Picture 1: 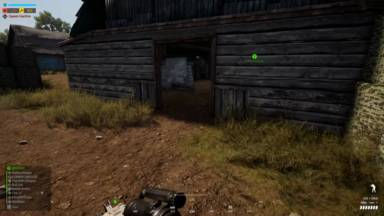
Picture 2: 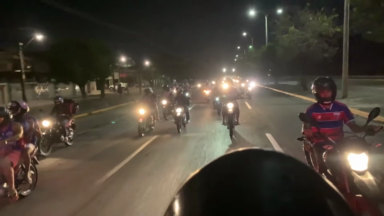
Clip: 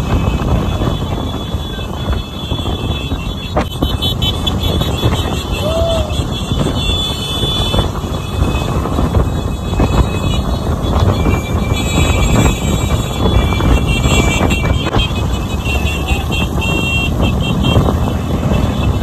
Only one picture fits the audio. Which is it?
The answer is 2